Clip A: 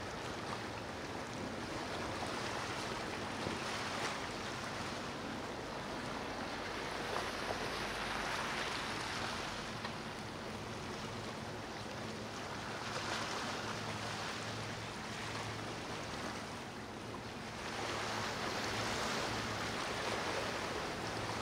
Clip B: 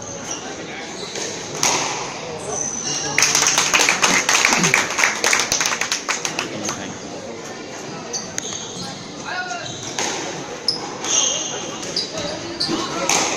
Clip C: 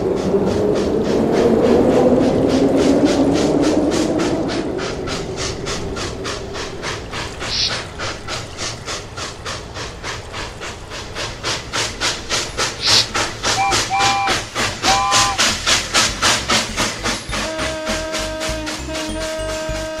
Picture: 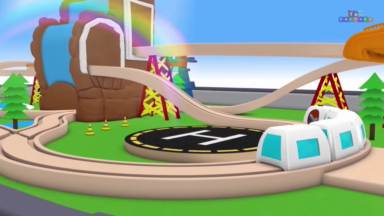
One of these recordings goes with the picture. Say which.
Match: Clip C